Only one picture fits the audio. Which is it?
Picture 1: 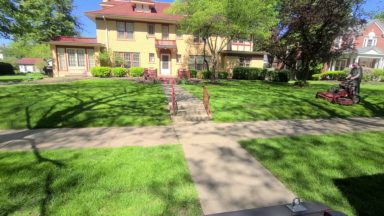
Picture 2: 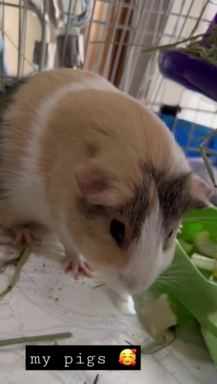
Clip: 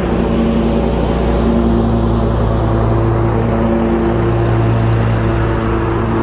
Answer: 1